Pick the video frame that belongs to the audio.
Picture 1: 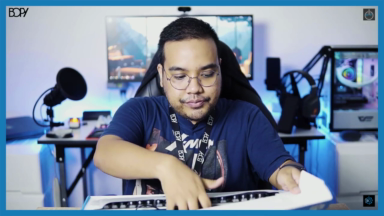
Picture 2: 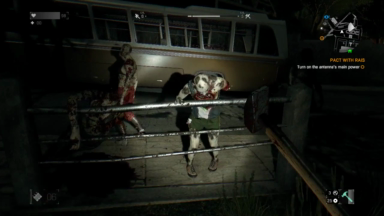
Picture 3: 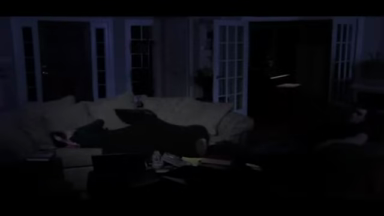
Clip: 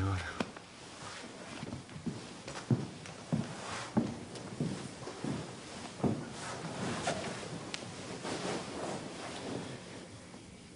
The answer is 3